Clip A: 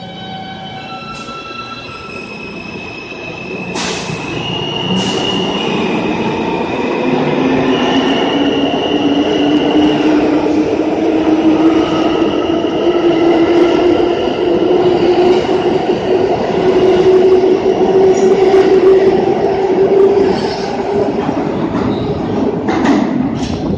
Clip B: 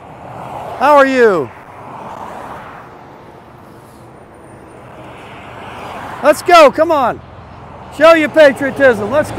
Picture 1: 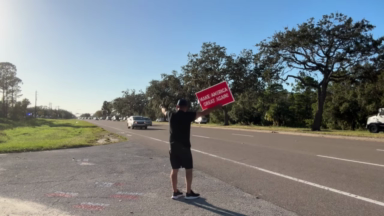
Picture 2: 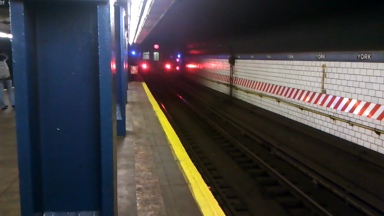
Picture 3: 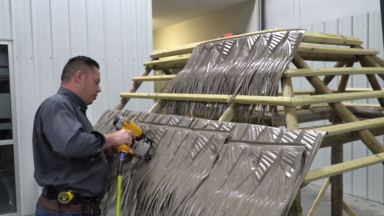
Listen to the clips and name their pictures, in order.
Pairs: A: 2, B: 1